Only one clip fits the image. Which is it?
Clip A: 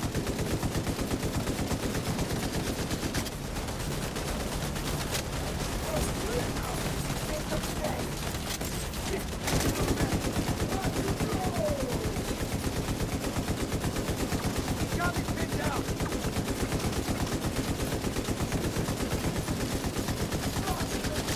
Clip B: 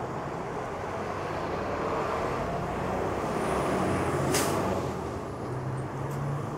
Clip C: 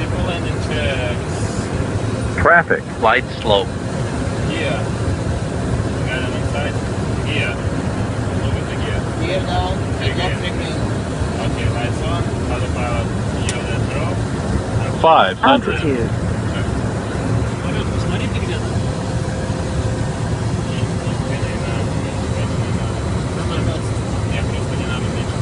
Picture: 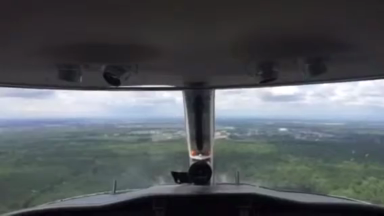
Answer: C